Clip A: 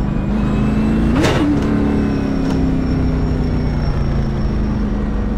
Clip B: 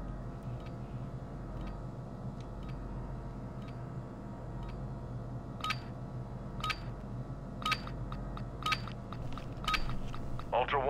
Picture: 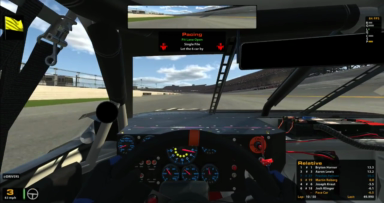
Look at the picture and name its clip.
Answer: A